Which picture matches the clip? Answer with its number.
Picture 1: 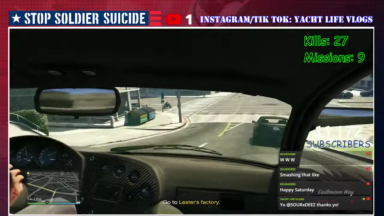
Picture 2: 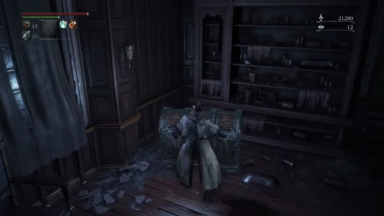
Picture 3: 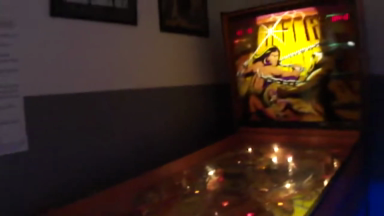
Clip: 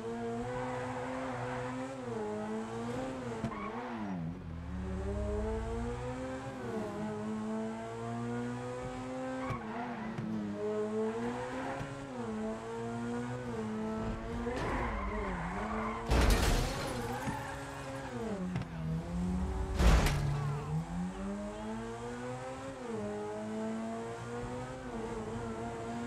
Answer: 1